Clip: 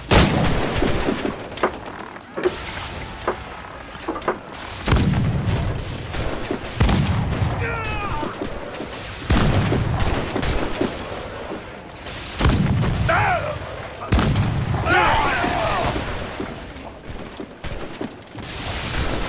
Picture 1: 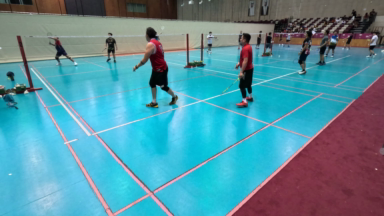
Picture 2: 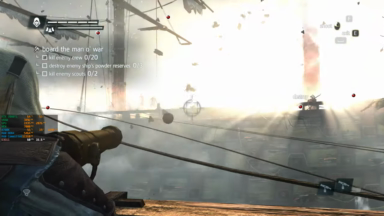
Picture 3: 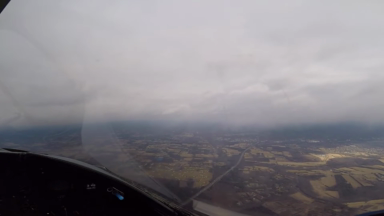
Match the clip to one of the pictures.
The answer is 2